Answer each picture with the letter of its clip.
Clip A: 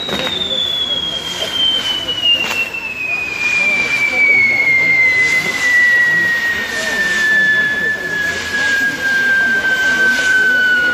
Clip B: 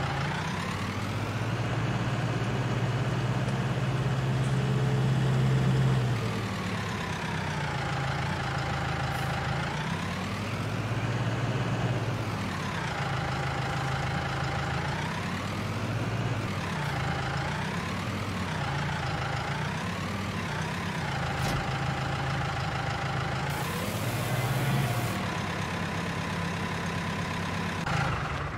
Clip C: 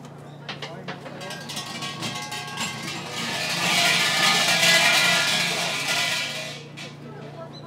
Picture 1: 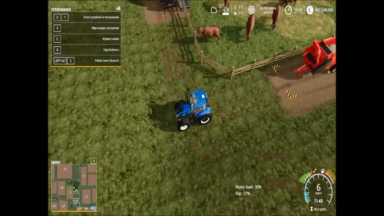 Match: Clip B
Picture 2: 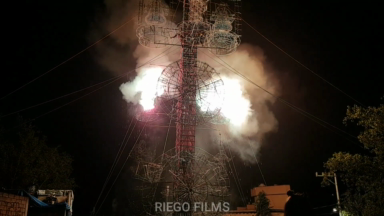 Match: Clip A